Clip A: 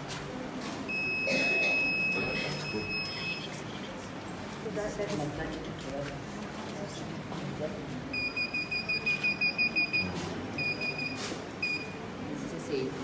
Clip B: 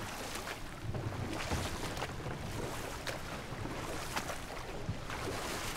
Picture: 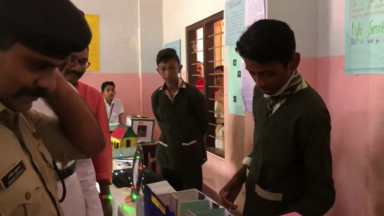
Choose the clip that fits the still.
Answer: A